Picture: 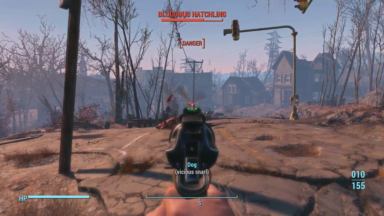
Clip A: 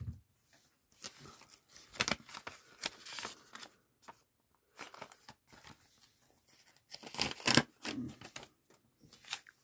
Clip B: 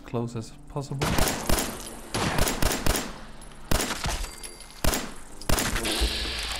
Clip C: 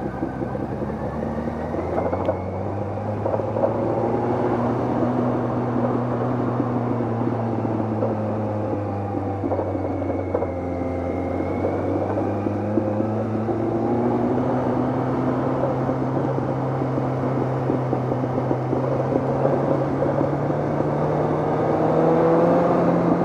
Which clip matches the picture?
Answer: B